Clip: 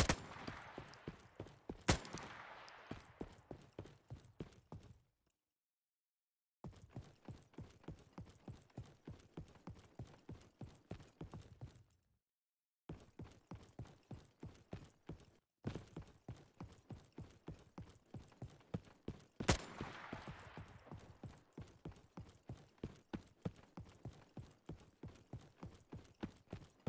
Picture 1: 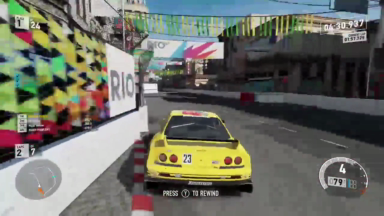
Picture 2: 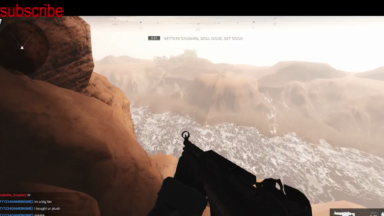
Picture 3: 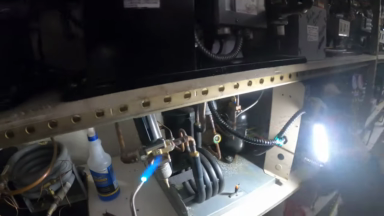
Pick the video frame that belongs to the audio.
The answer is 2